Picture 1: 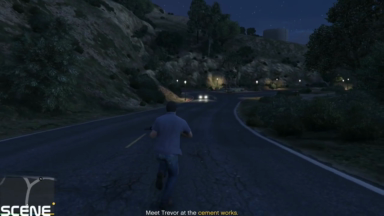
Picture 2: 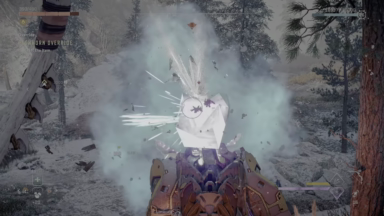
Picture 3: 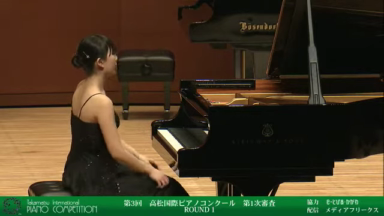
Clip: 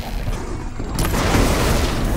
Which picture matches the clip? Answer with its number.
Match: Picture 2